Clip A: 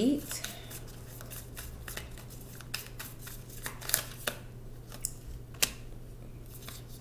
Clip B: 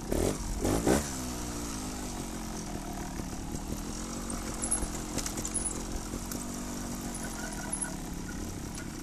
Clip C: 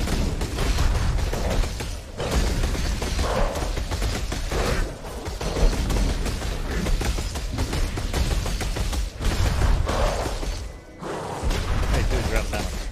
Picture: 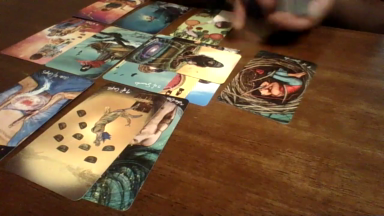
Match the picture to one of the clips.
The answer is A